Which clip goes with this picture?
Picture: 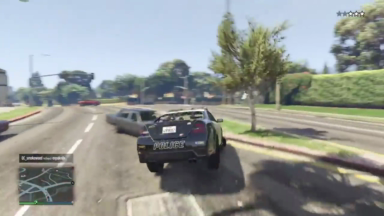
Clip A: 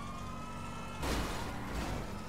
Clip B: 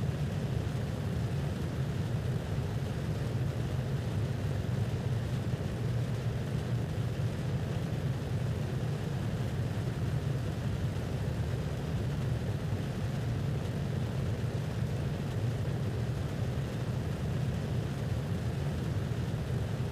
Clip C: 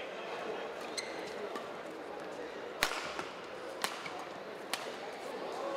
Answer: A